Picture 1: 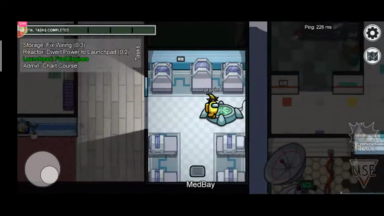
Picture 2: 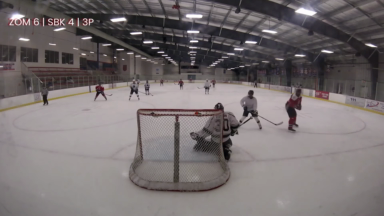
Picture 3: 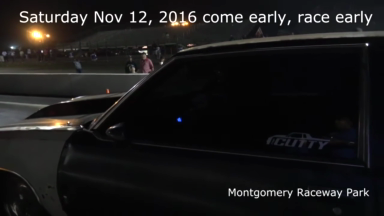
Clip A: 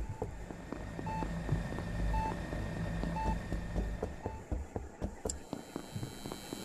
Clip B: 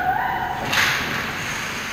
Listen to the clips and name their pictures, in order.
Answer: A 1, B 2